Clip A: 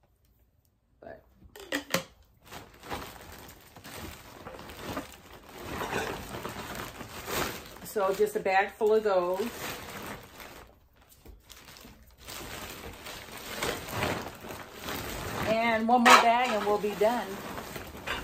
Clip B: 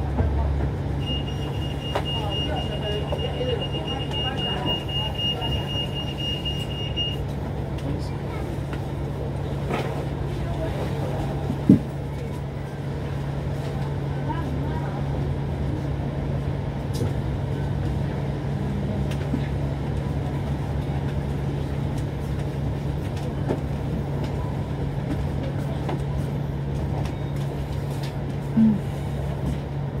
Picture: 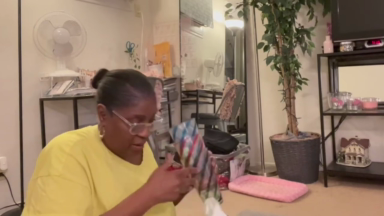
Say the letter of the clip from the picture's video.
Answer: A